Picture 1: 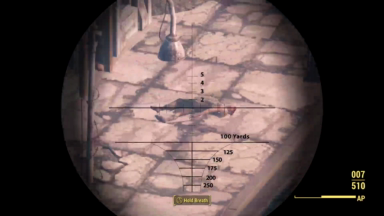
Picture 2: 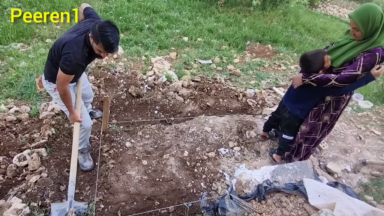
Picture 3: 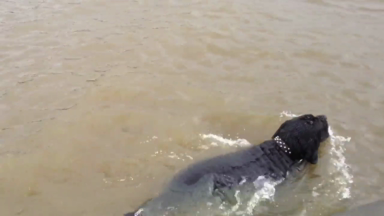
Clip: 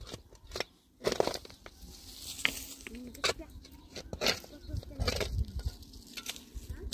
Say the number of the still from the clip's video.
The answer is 2